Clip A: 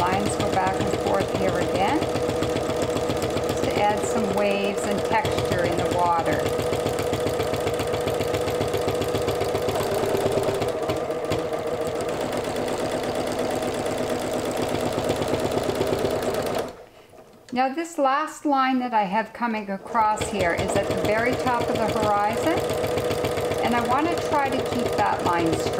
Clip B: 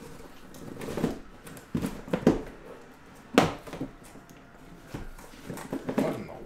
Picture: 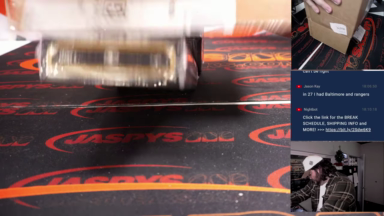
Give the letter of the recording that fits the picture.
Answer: B